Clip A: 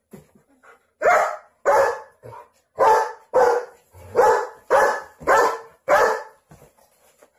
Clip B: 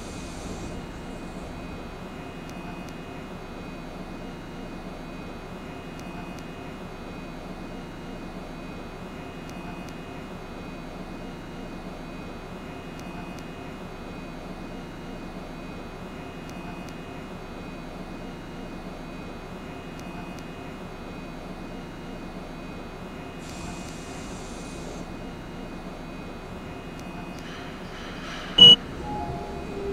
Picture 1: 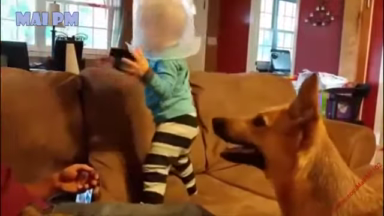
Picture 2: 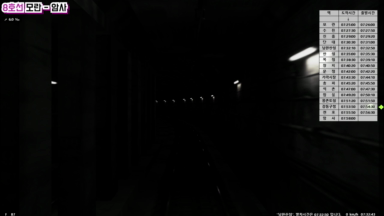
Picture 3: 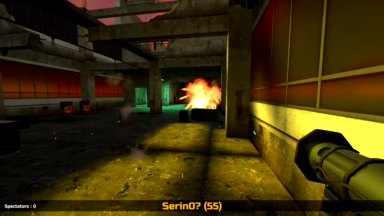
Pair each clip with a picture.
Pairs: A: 1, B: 2